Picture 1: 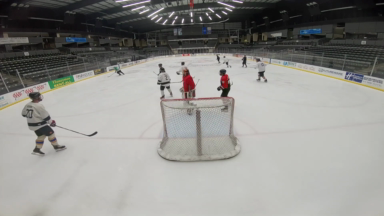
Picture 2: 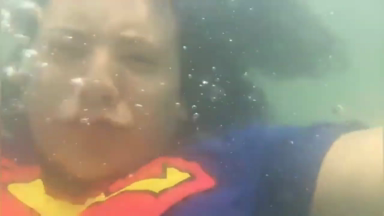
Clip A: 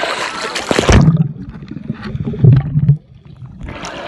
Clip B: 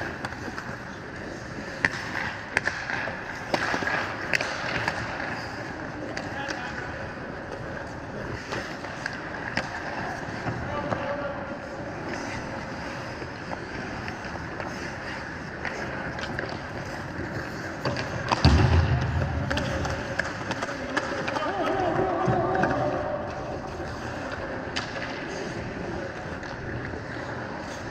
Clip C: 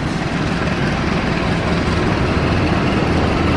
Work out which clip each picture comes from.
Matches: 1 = B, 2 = A